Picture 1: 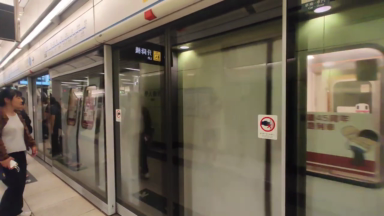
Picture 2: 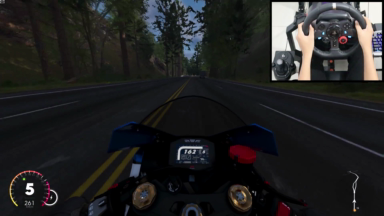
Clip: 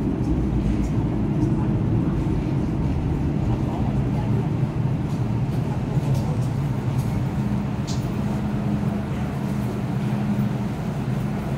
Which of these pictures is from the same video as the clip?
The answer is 1